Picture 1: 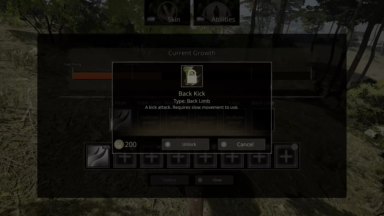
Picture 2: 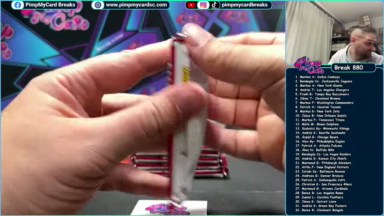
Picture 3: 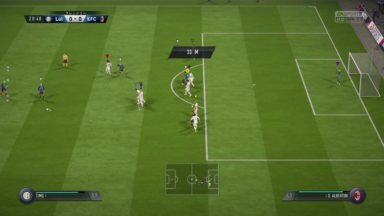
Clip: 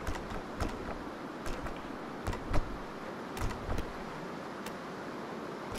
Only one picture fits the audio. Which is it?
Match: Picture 1